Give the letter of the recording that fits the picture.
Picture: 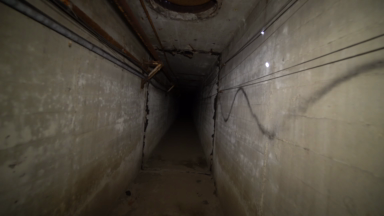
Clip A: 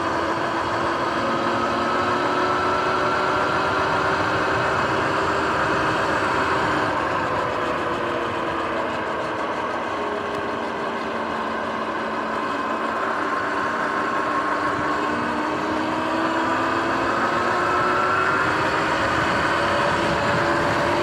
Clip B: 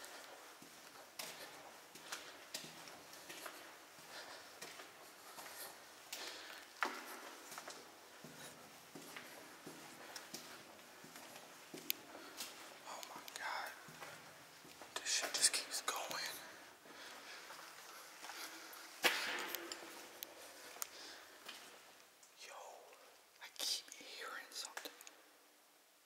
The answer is B